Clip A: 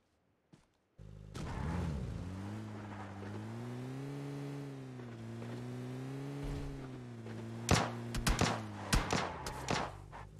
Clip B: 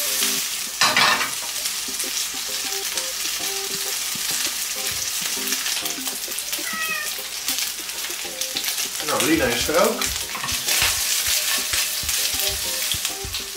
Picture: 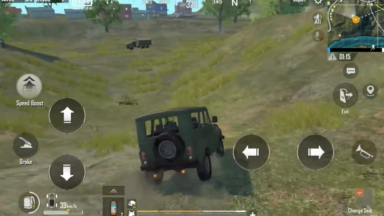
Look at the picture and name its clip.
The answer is A